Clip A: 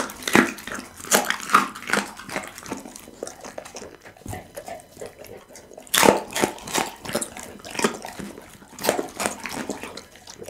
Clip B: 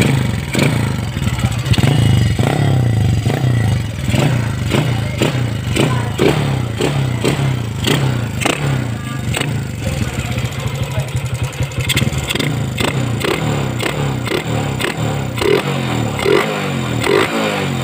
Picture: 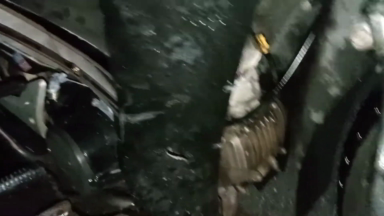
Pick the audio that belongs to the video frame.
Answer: B